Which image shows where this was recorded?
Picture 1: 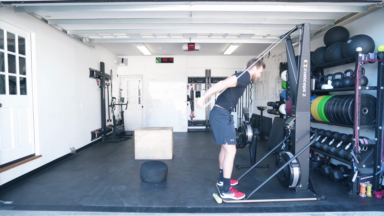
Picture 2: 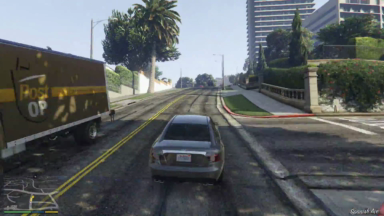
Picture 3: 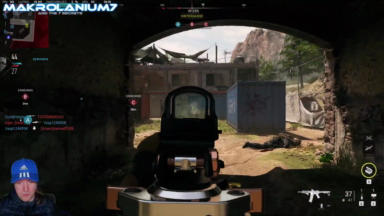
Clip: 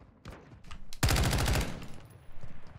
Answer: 3